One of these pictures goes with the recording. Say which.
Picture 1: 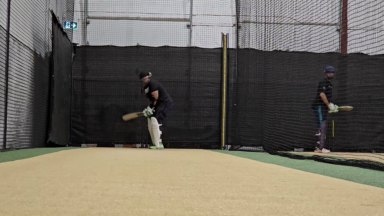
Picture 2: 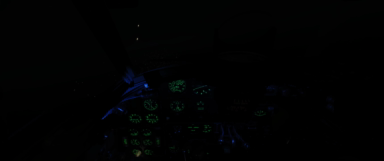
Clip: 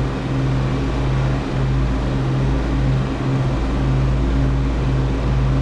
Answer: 2